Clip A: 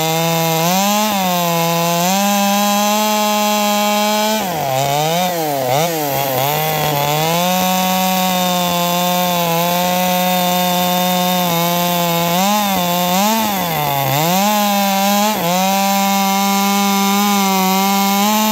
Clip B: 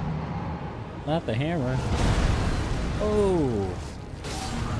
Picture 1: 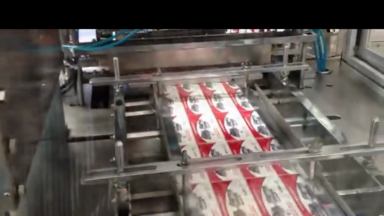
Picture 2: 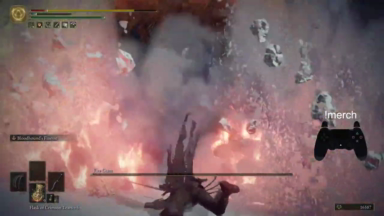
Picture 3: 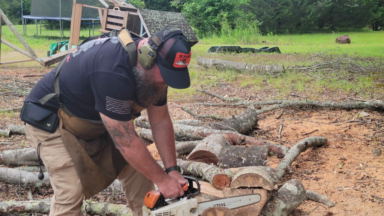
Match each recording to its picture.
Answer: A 3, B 2